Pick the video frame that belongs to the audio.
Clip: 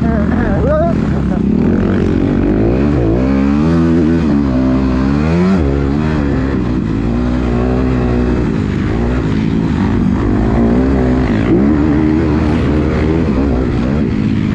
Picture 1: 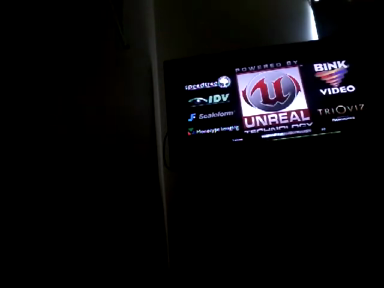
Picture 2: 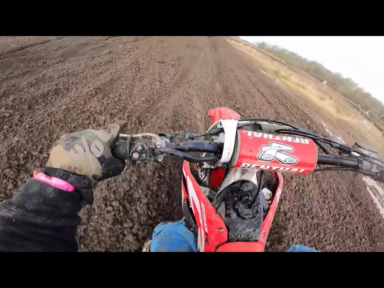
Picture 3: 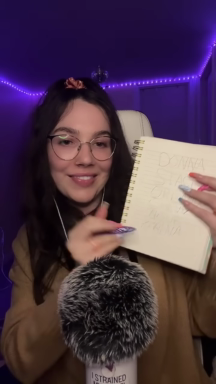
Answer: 2